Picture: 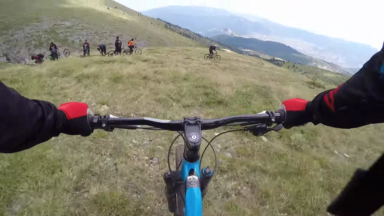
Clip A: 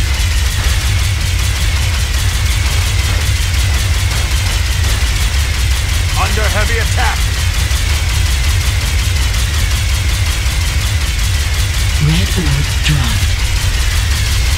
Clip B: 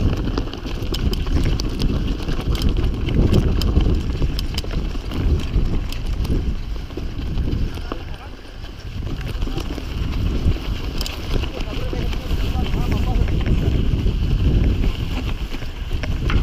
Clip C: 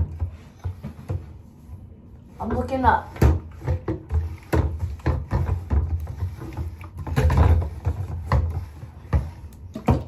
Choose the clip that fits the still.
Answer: B